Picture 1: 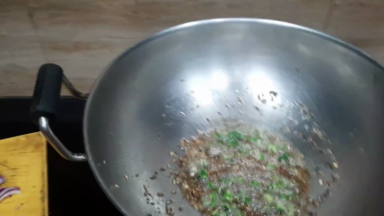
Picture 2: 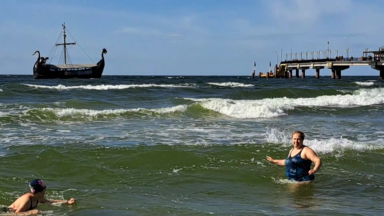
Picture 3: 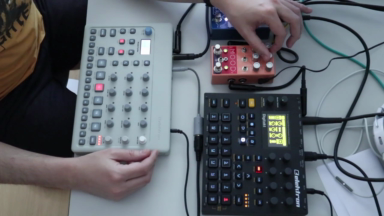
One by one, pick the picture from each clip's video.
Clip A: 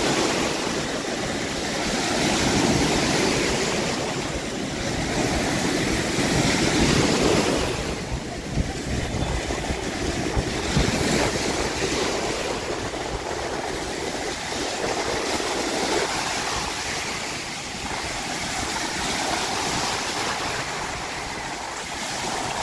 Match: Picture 2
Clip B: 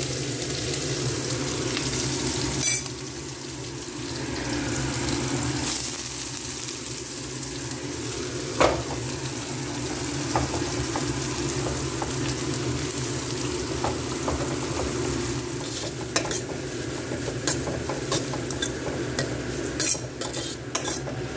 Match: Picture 1